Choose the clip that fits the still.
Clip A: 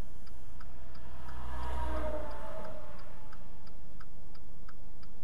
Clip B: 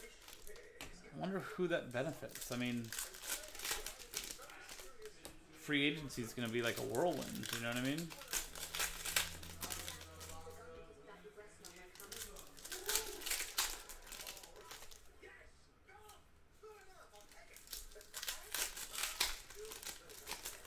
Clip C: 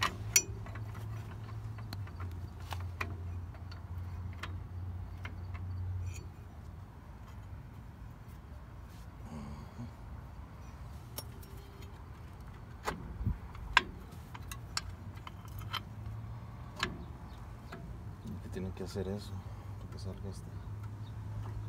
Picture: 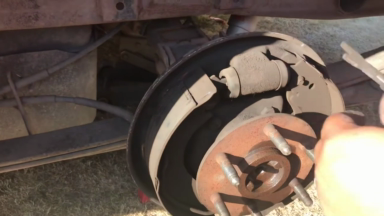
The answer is C